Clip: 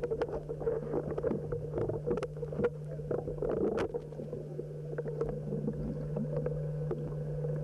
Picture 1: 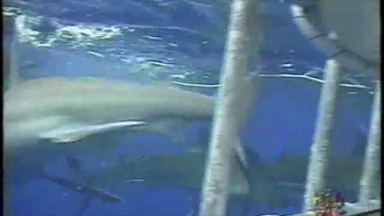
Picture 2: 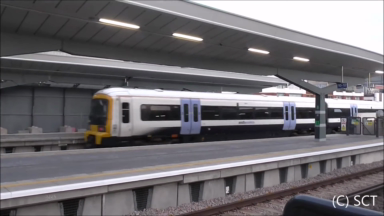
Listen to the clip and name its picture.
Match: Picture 1